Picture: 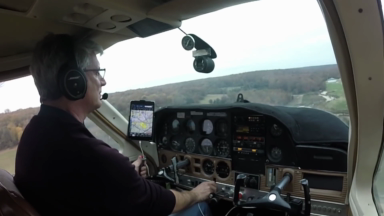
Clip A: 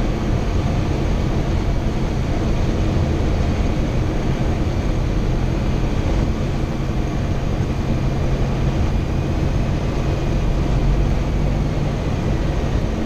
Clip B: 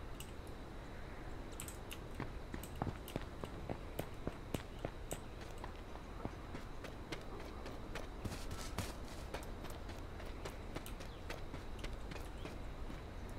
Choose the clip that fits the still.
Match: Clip A